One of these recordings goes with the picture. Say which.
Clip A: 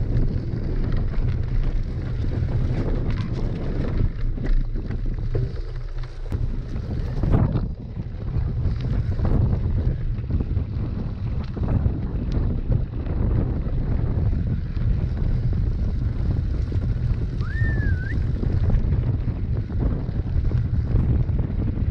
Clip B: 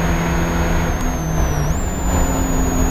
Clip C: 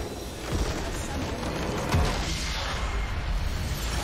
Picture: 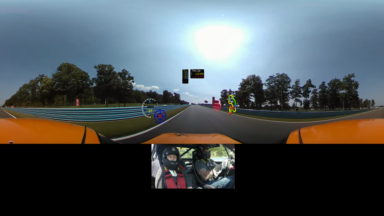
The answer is B